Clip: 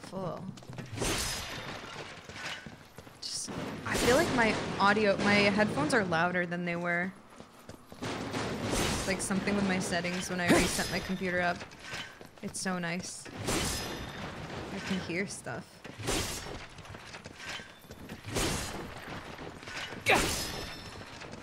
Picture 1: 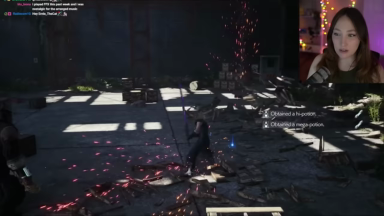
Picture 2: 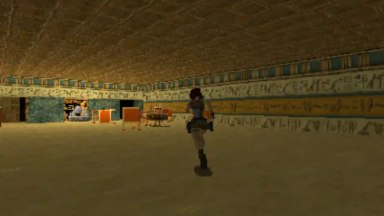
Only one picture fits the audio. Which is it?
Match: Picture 1